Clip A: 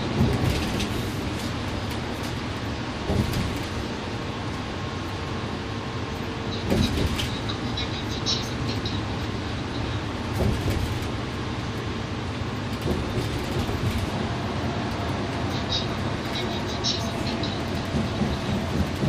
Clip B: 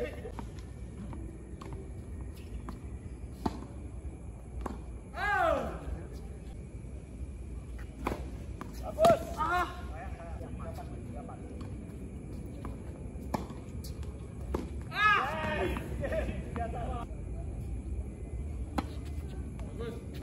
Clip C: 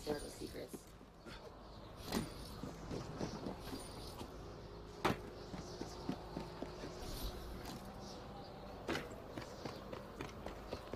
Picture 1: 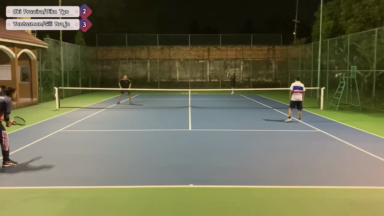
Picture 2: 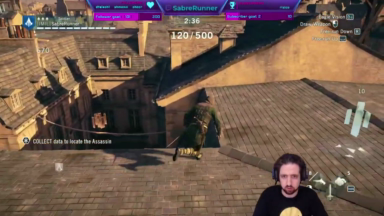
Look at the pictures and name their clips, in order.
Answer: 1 B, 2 C